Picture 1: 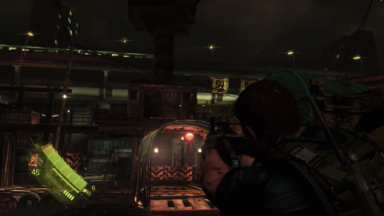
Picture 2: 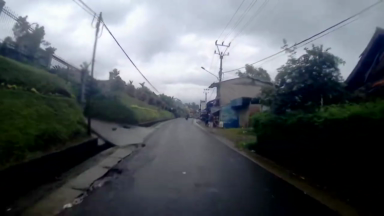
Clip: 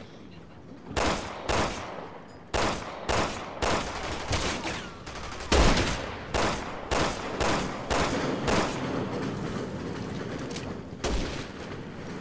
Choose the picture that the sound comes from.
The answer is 1